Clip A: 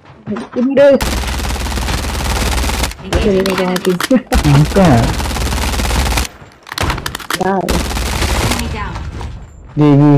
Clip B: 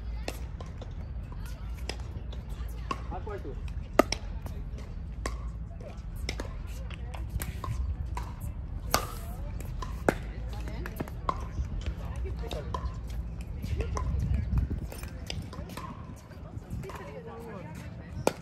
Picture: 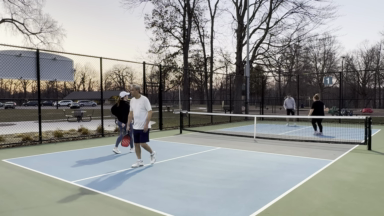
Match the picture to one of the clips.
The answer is B